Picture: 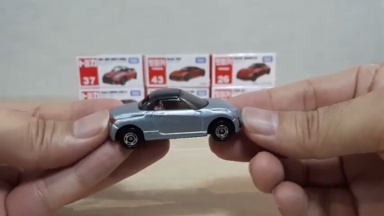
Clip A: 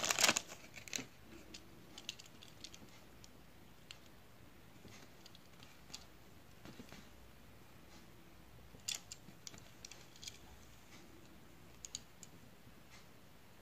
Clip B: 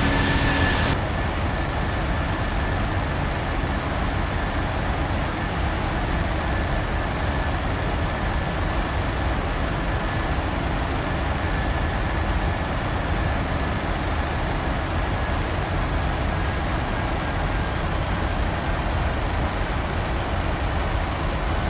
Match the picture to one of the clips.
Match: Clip A